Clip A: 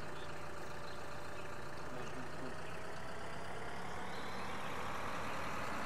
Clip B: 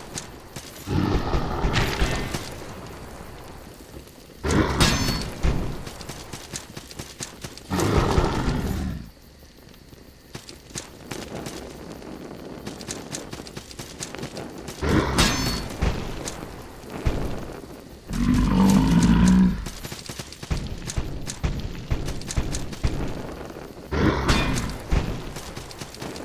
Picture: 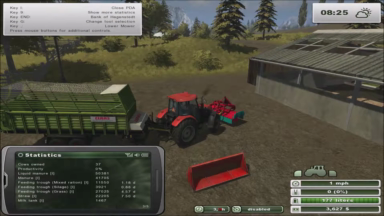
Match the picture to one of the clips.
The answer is A